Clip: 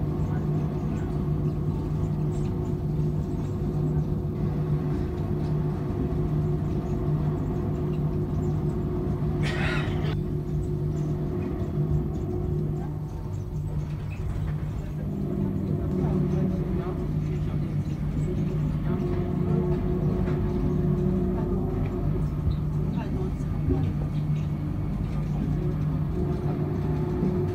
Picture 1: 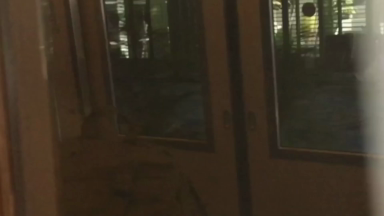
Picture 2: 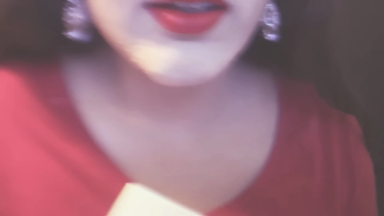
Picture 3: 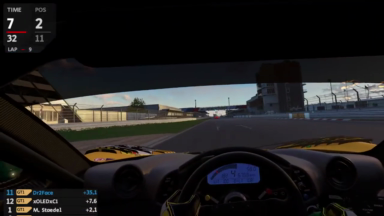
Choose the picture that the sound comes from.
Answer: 1